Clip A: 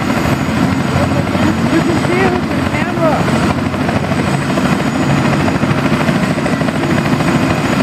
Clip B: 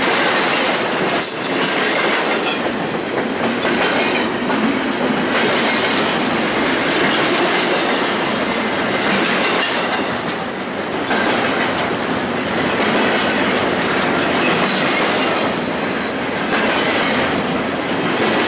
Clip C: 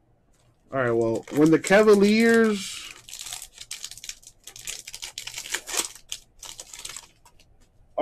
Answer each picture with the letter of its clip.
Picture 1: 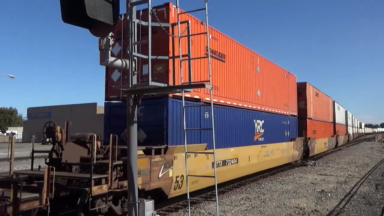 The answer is B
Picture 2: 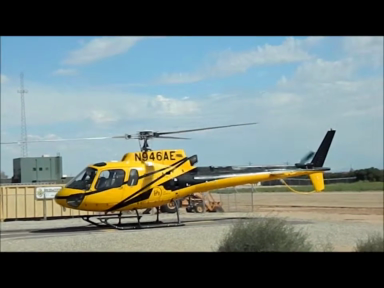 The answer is A